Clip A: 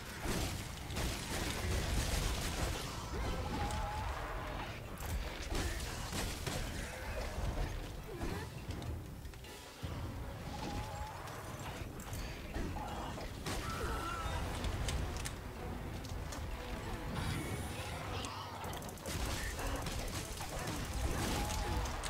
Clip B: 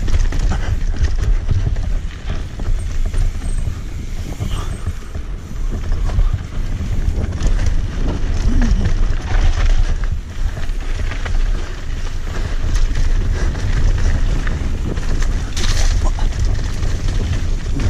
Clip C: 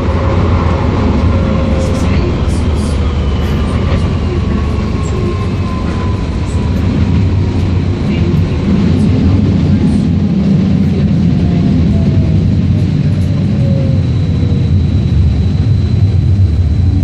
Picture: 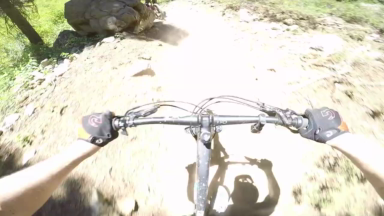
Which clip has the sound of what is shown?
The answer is B